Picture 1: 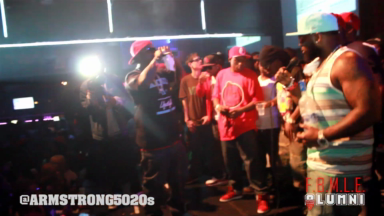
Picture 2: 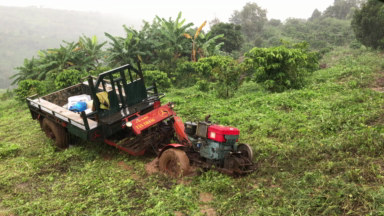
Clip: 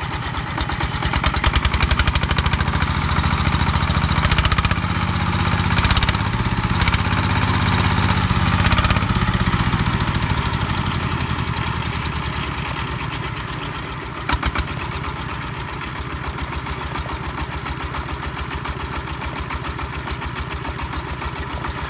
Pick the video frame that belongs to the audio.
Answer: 2